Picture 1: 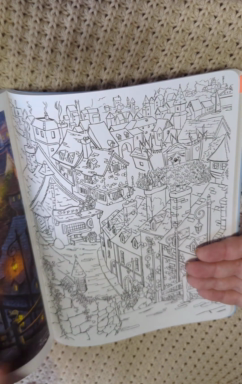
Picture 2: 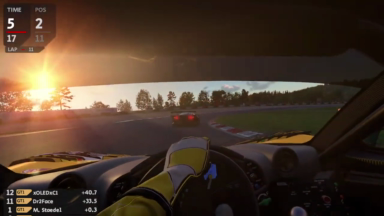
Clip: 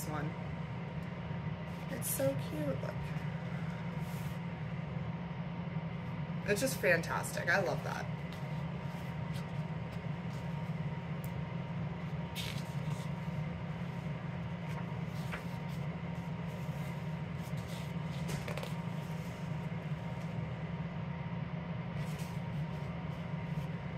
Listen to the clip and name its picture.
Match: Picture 1